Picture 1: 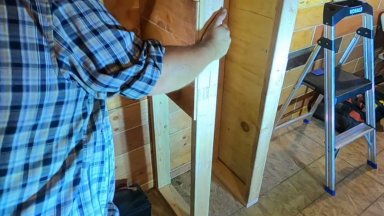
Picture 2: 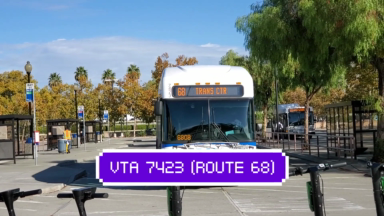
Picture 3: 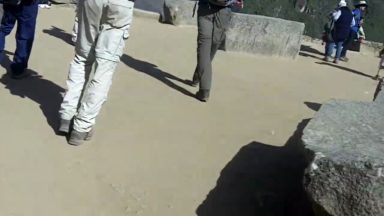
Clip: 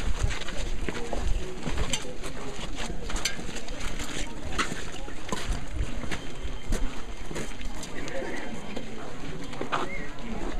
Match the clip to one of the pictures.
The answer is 3